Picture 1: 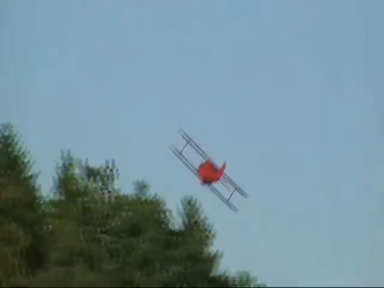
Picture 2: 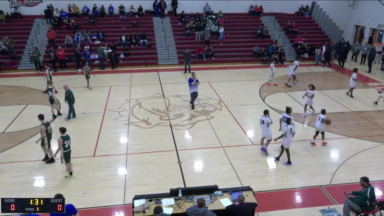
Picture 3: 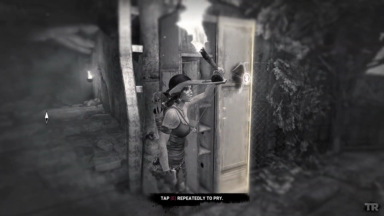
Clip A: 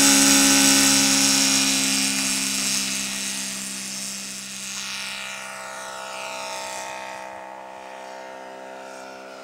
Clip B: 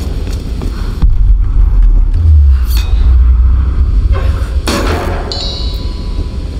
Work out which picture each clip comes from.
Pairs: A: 1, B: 3